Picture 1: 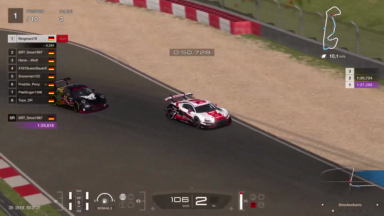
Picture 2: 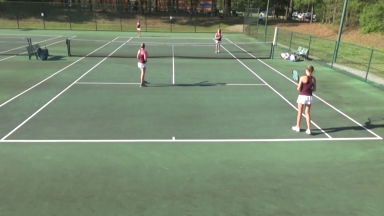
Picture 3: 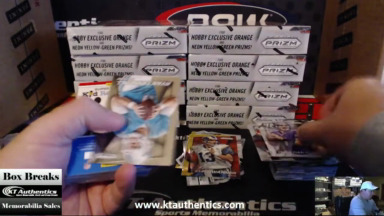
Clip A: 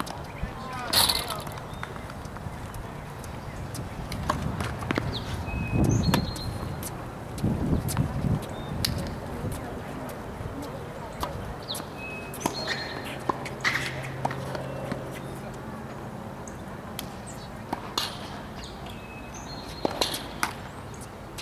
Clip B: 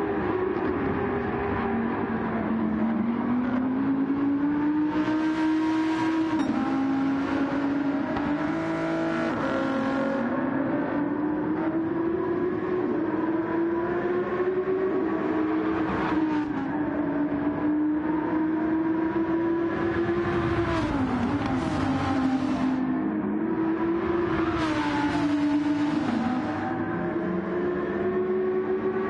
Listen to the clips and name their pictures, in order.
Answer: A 2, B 1